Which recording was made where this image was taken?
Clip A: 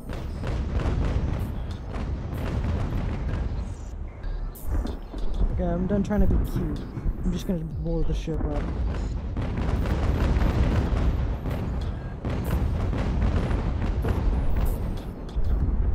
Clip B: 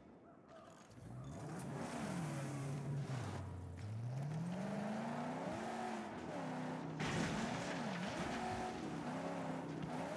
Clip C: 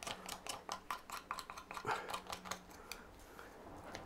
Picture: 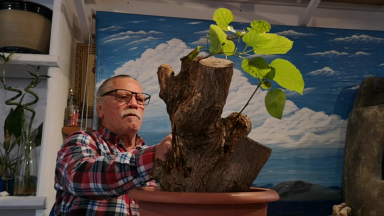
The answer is C